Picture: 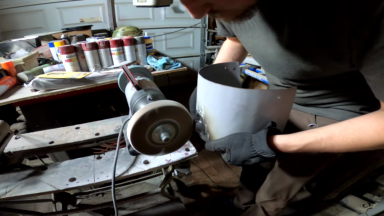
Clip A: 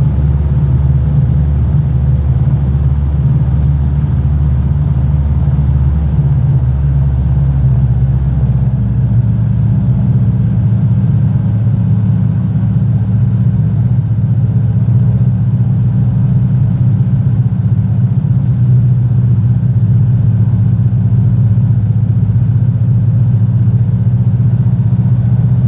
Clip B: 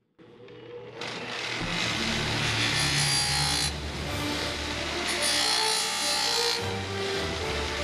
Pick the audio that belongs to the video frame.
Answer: B